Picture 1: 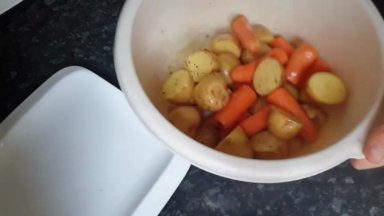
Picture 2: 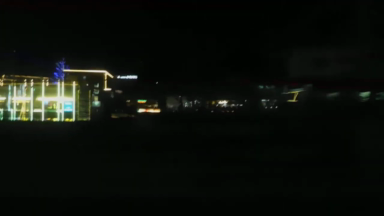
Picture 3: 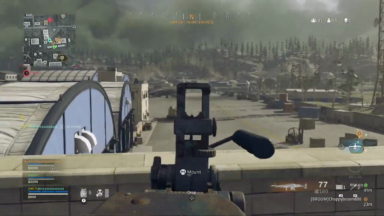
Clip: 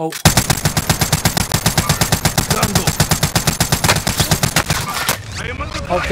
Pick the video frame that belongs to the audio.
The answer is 3